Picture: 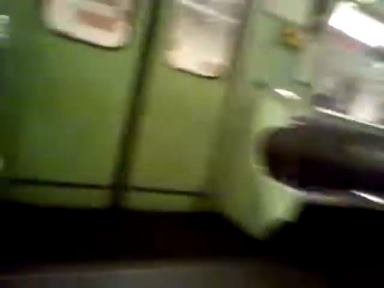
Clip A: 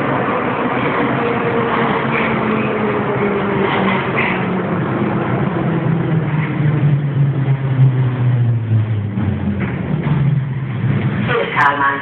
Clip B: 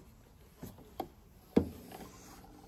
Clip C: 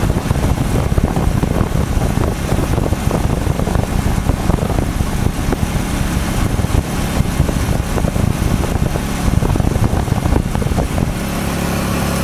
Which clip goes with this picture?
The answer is A